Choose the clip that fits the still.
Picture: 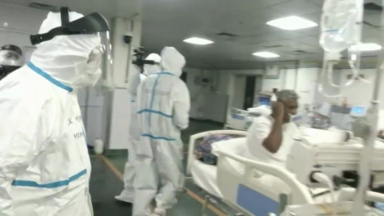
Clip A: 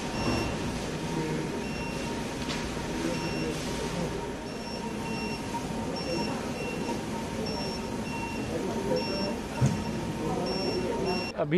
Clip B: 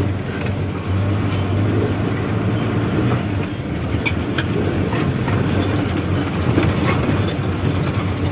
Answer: A